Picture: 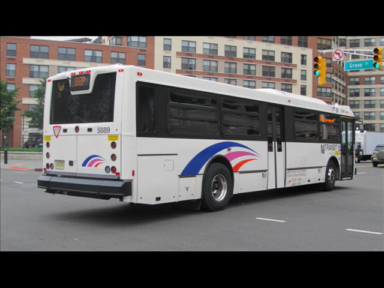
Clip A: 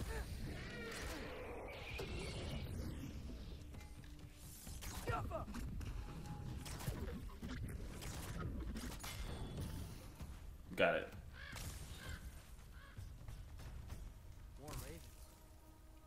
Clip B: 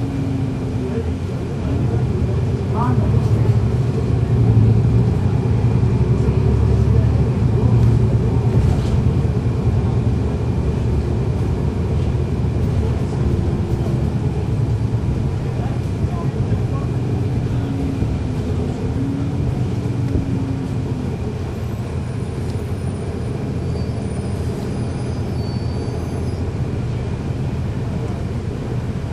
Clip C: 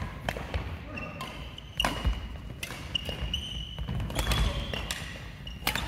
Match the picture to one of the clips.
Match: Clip B